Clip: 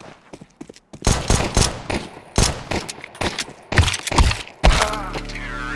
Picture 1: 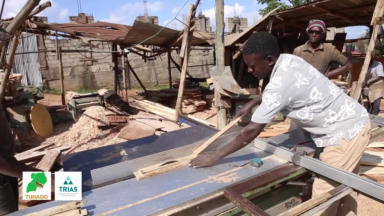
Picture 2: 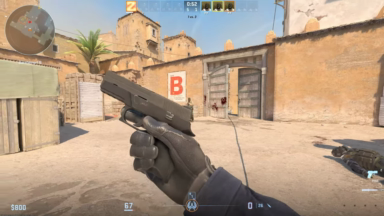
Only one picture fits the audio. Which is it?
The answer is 2